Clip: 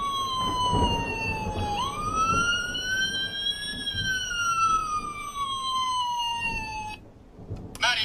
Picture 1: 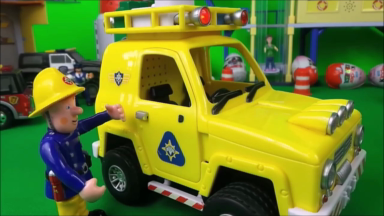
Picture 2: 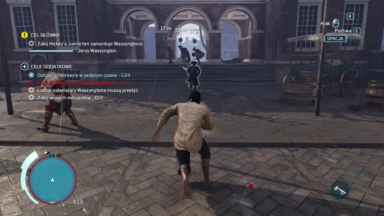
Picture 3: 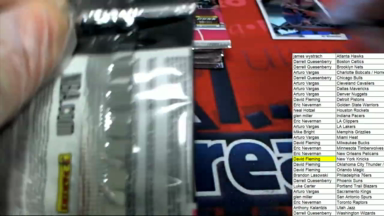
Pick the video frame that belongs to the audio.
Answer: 1